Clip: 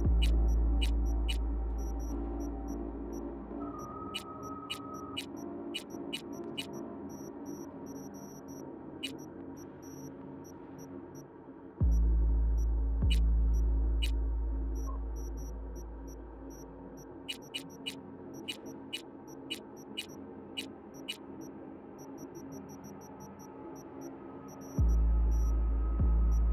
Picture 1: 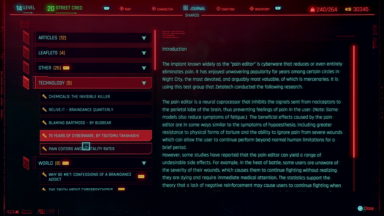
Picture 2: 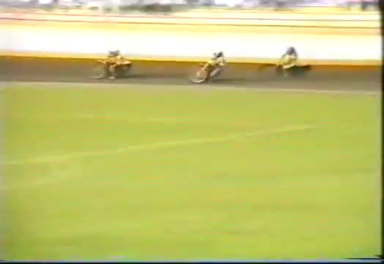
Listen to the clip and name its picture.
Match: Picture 1